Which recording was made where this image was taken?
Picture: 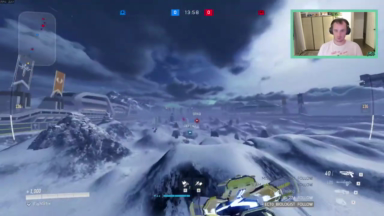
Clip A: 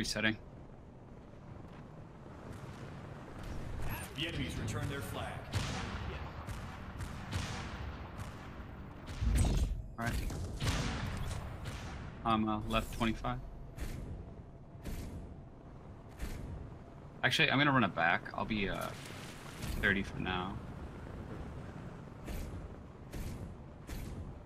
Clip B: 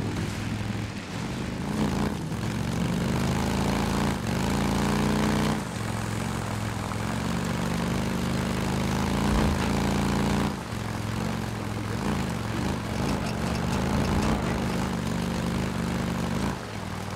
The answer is A